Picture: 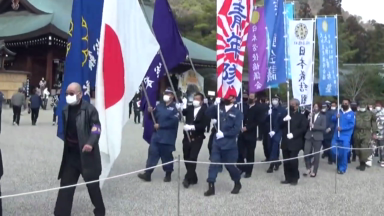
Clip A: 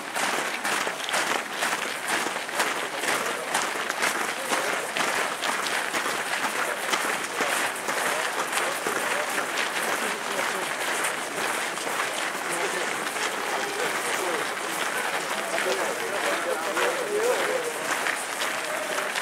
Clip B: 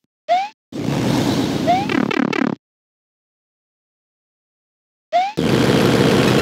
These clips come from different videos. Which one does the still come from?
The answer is A